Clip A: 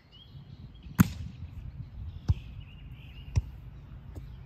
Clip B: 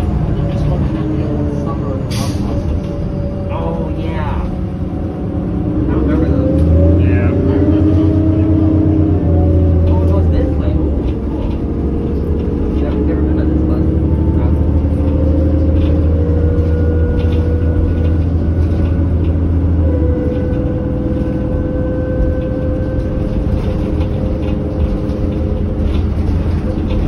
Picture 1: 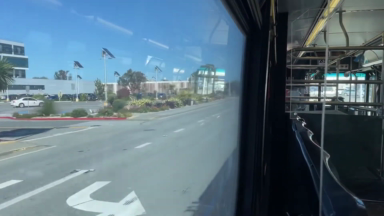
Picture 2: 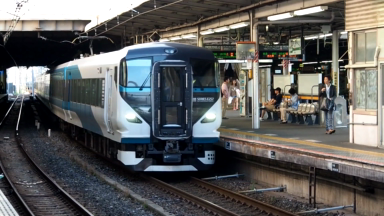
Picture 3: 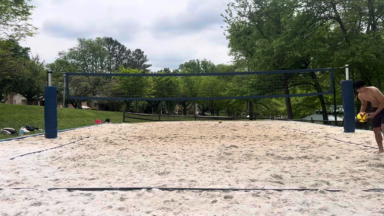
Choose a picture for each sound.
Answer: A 3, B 1